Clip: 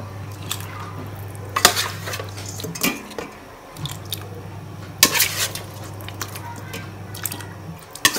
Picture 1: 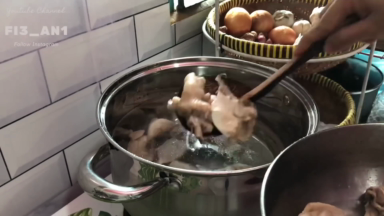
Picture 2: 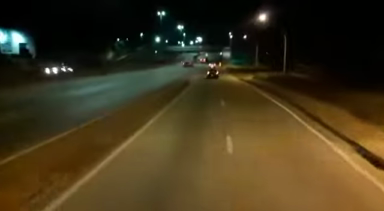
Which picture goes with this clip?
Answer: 1